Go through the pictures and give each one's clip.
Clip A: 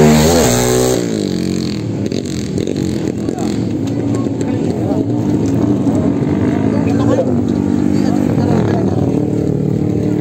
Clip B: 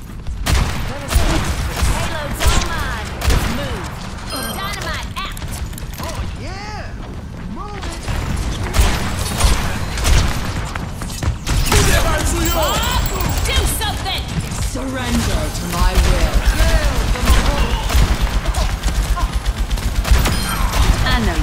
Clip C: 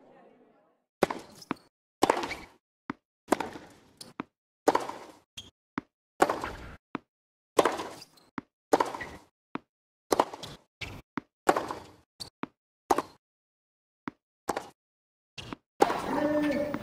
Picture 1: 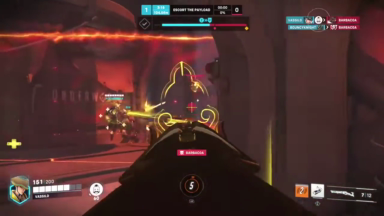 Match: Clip B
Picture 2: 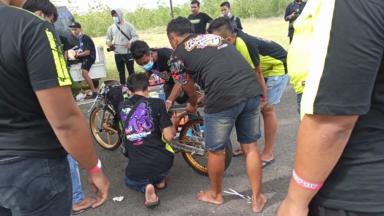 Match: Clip A